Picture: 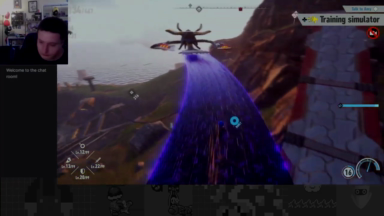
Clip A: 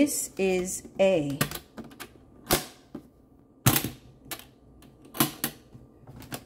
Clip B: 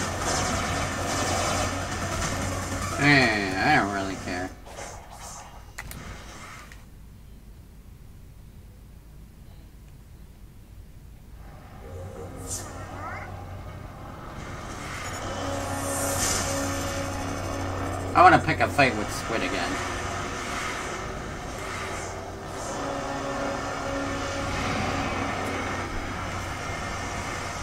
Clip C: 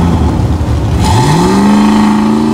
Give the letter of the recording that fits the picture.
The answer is B